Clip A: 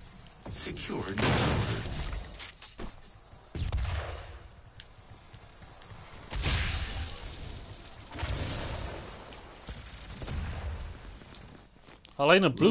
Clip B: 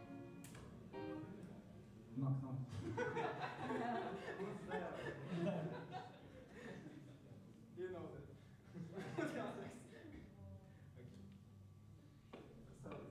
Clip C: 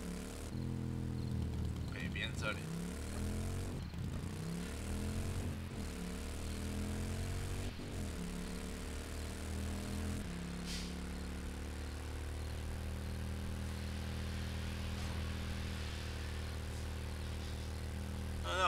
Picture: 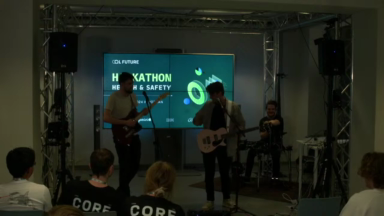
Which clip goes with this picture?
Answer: B